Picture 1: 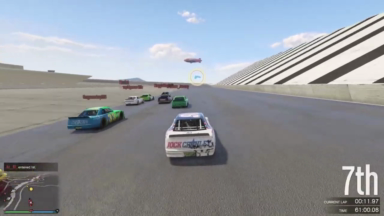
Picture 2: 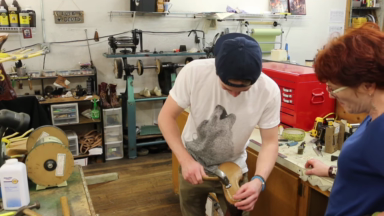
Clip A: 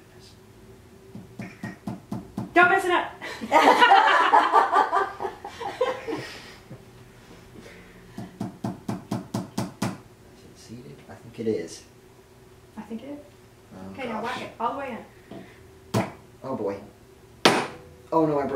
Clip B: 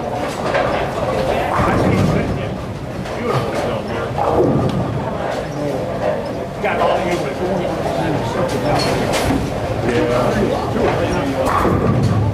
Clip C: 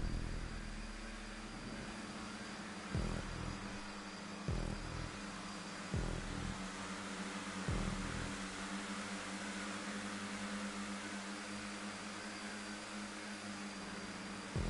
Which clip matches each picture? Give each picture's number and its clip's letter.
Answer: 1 C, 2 A